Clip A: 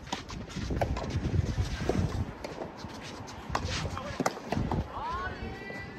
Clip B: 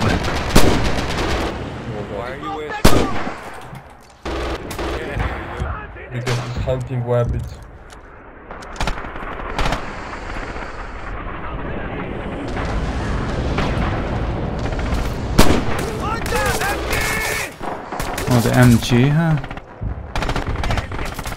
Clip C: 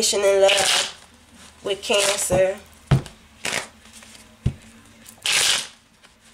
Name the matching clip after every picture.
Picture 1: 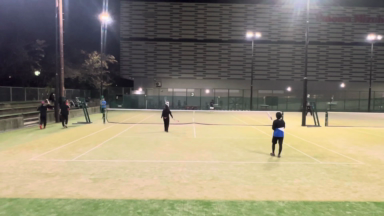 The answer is A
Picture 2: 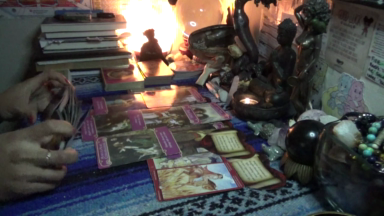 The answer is C